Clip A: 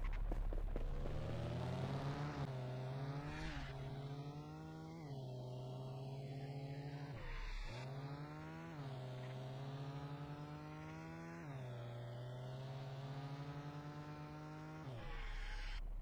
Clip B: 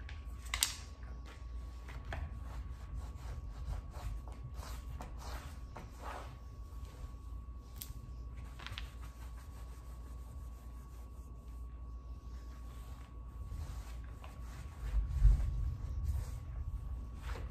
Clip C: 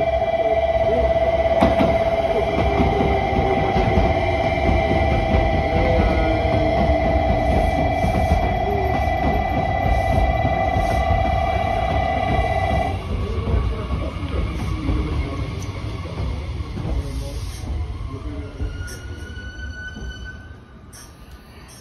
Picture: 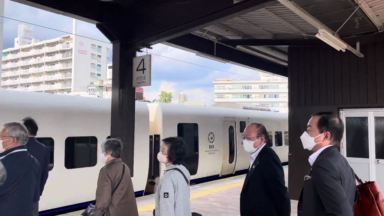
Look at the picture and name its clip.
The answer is C